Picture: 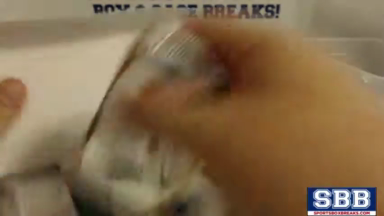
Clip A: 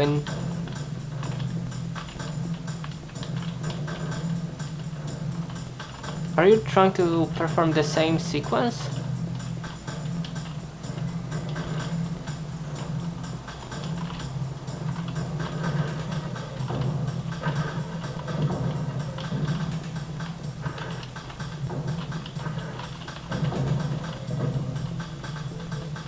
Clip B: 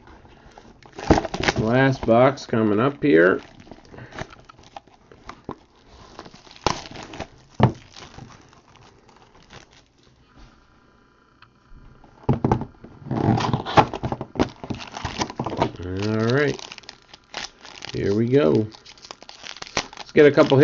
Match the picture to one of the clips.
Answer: B